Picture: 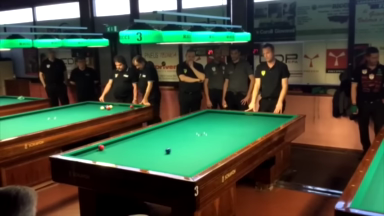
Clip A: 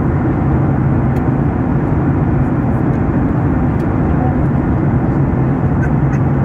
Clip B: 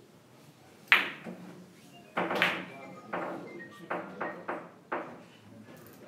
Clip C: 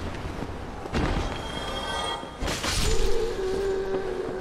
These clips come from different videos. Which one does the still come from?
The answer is B